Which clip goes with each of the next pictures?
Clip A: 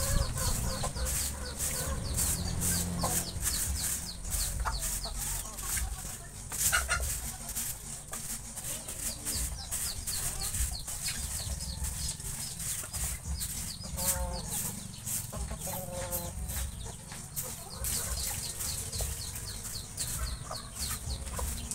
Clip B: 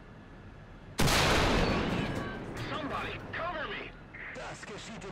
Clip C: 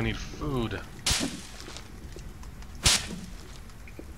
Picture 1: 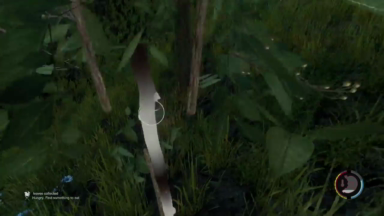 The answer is C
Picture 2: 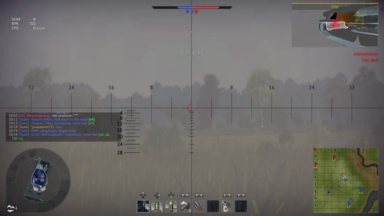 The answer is B